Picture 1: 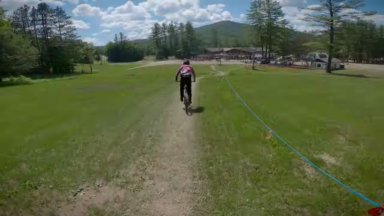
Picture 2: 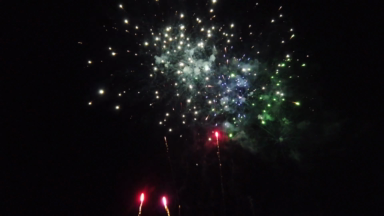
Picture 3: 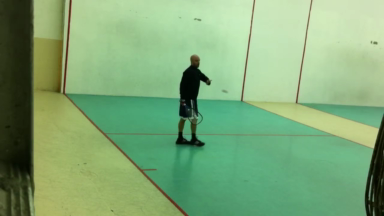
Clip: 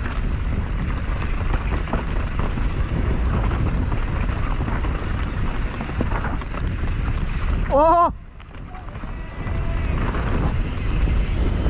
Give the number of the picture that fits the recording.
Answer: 1